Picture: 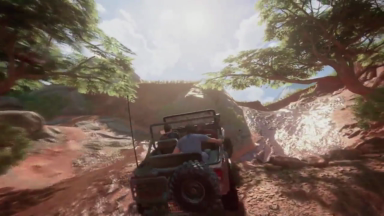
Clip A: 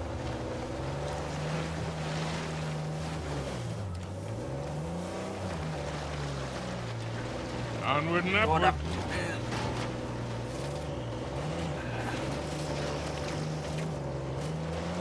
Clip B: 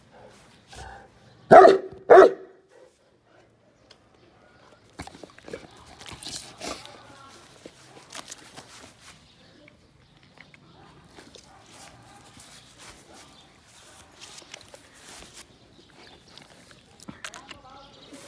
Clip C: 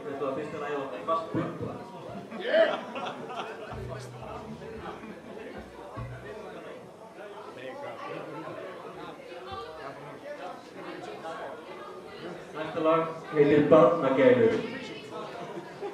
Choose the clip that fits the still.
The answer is A